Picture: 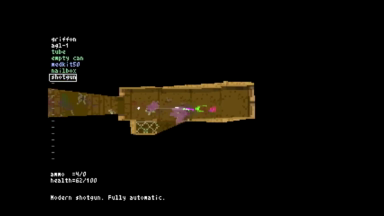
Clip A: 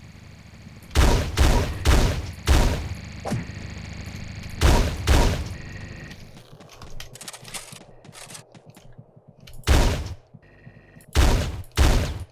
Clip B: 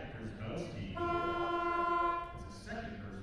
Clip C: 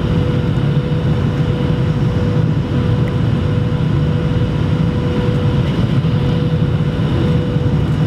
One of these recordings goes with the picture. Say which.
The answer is A